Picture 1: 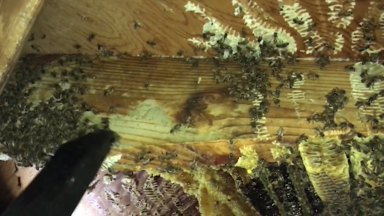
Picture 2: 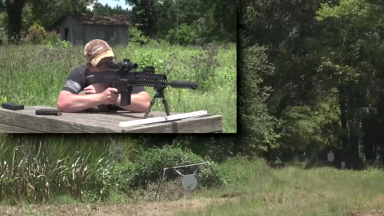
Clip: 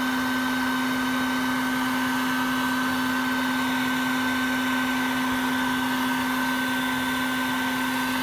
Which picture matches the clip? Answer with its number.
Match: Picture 1